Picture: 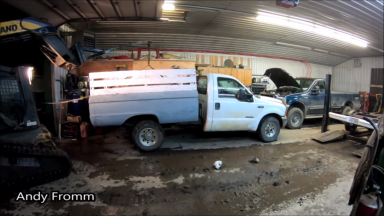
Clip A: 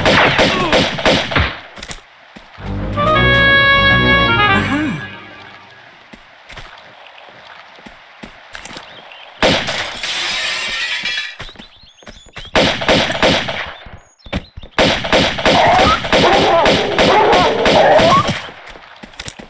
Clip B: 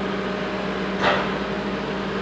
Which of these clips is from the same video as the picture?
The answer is B